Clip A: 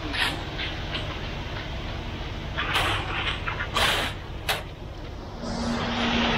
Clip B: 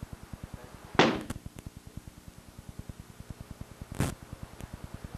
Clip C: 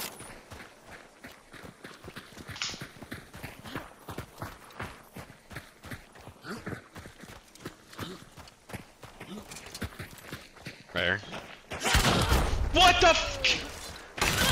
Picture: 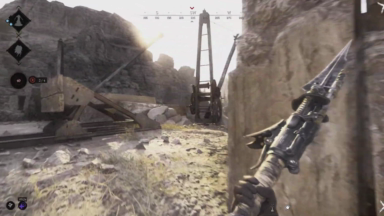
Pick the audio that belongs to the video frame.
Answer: C